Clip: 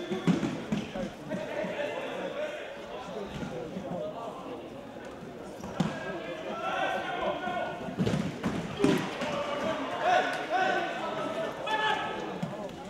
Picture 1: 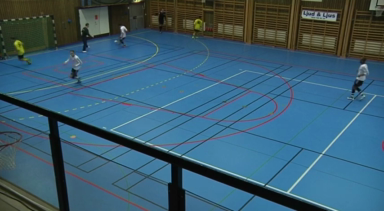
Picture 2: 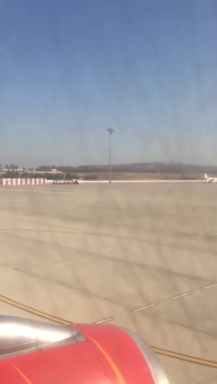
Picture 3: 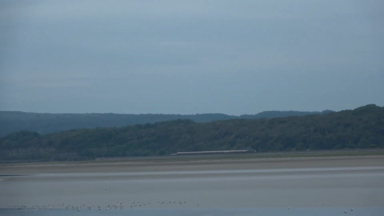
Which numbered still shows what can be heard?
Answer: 1